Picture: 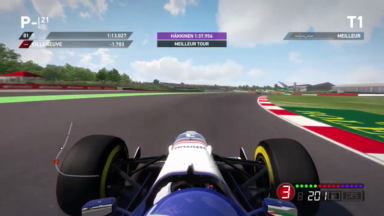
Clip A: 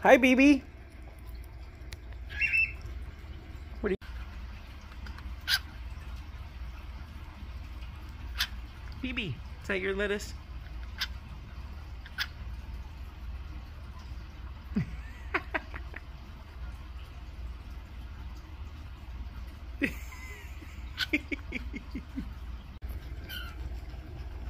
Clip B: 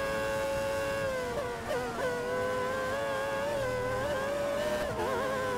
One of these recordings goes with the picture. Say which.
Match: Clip B